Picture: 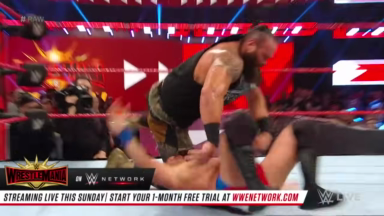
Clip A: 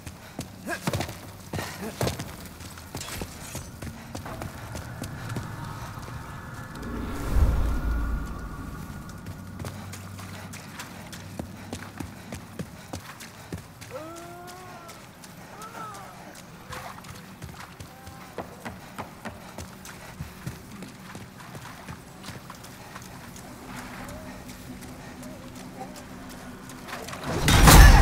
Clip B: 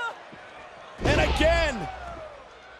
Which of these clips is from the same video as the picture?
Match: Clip B